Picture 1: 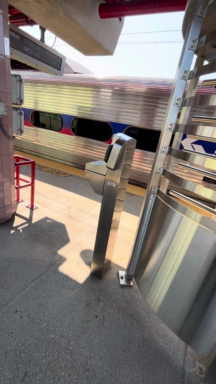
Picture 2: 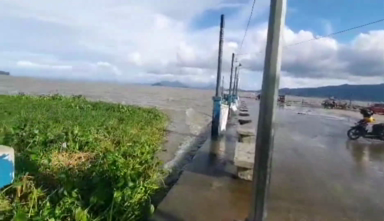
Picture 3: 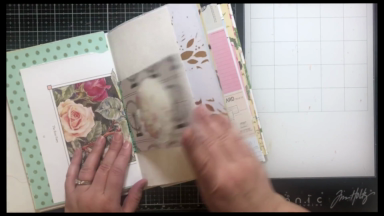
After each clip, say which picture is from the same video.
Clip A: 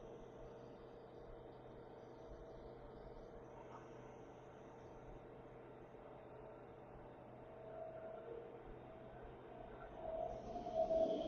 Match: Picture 1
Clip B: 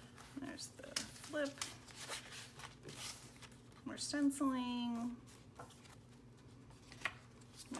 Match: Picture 3